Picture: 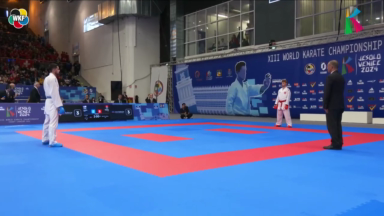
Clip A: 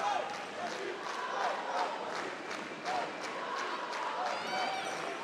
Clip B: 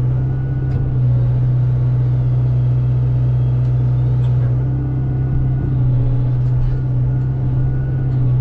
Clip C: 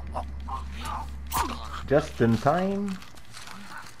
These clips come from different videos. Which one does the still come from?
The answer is A